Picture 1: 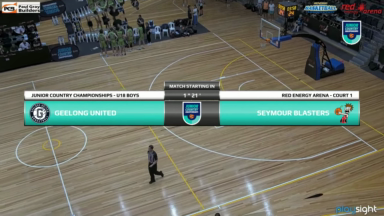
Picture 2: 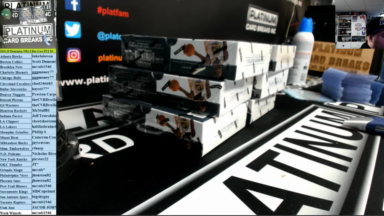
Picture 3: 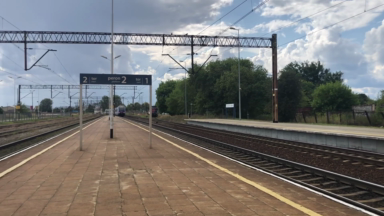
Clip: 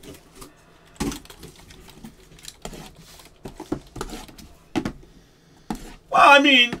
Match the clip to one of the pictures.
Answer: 2